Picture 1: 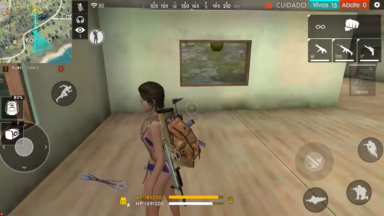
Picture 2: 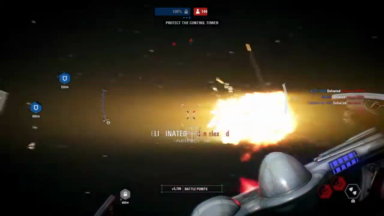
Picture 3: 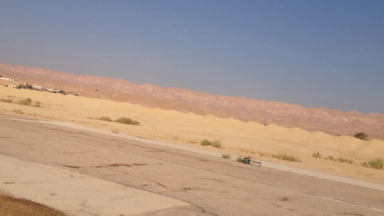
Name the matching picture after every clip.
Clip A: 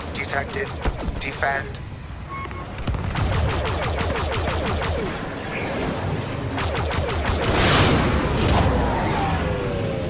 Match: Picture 2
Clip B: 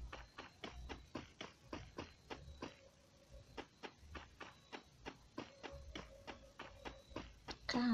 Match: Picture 1